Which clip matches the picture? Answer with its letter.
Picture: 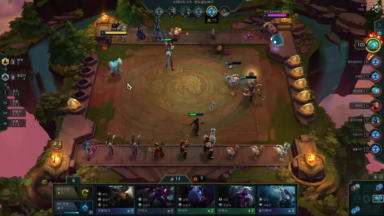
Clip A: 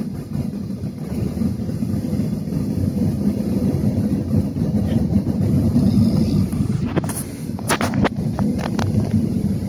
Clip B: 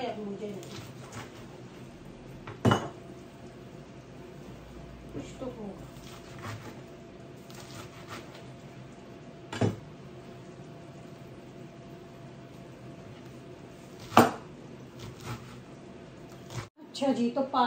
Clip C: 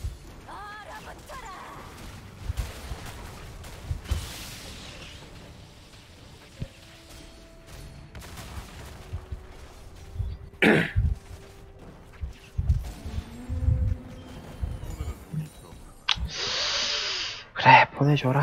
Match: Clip C